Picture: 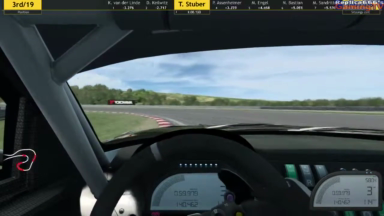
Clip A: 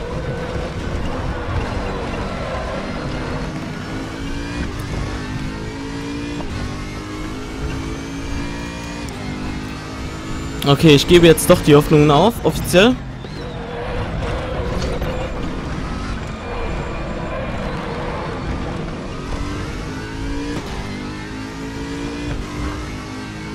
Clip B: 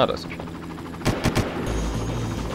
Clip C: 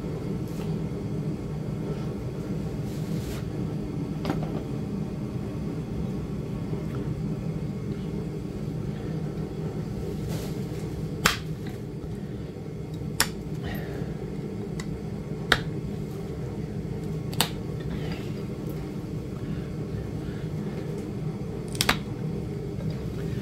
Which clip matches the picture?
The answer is A